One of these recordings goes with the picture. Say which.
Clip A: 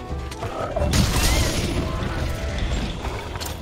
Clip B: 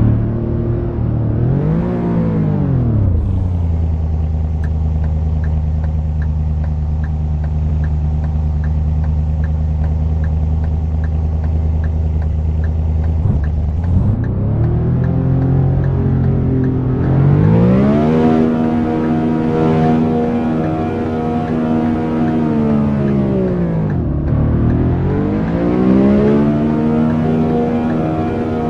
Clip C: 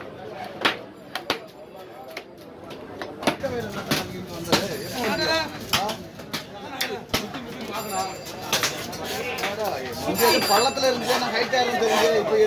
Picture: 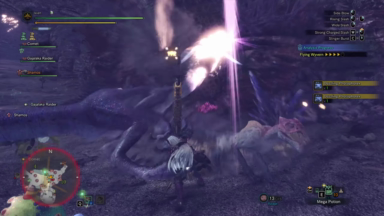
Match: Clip A